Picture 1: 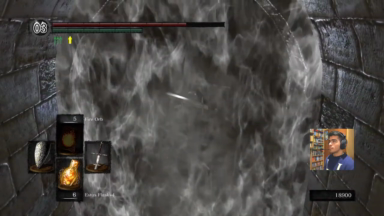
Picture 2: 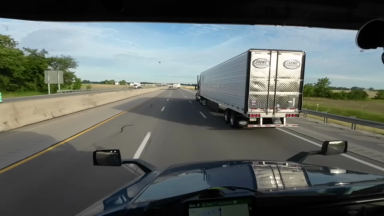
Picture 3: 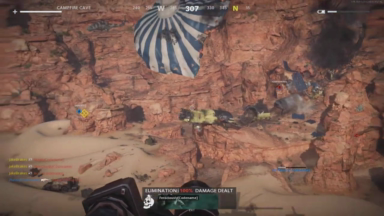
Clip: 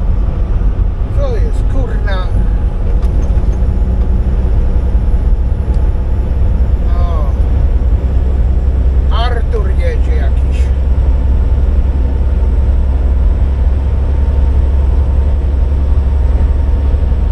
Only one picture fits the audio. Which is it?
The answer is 2